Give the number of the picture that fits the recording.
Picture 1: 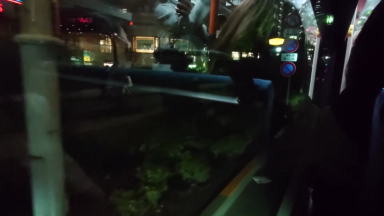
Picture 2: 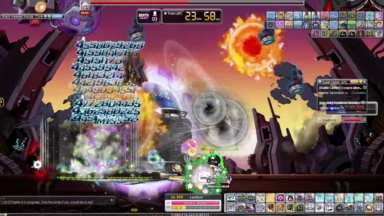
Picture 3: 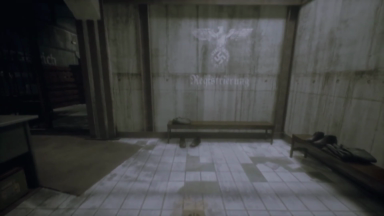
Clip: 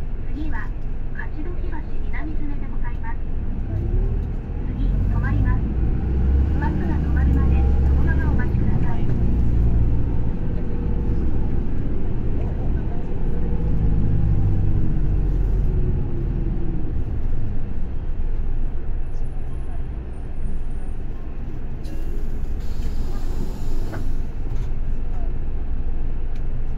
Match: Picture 1